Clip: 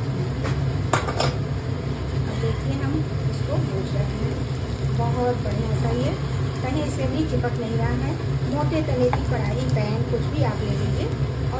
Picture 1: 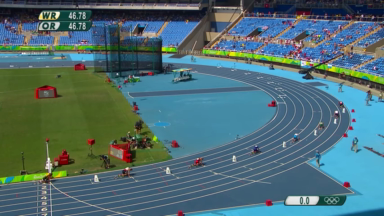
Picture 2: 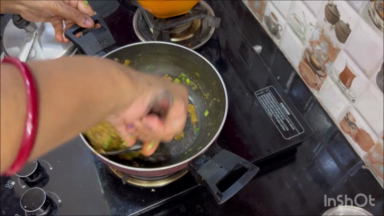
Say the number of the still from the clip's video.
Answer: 2